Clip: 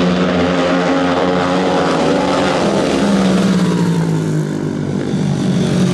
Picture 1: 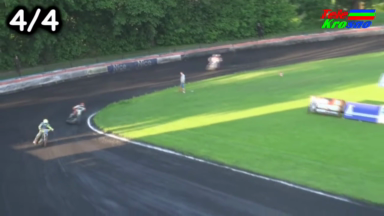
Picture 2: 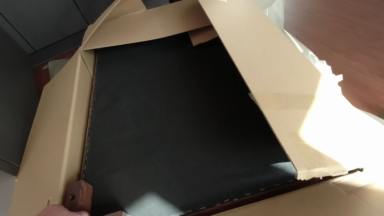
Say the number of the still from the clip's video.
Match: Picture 1